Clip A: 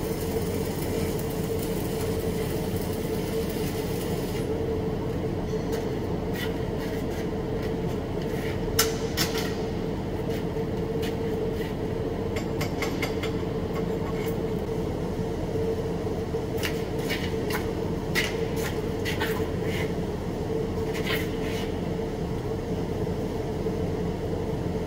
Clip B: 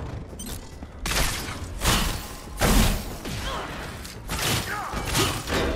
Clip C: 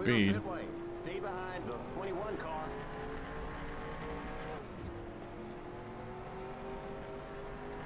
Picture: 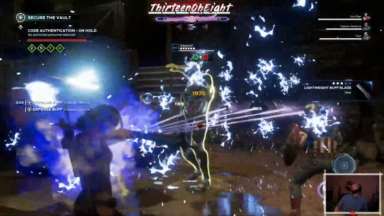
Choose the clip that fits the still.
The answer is B